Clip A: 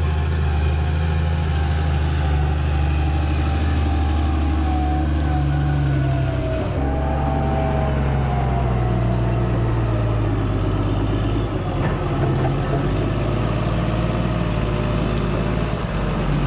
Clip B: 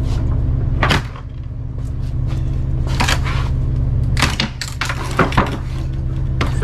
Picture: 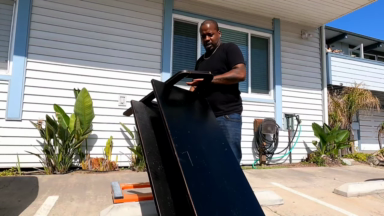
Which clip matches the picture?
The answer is B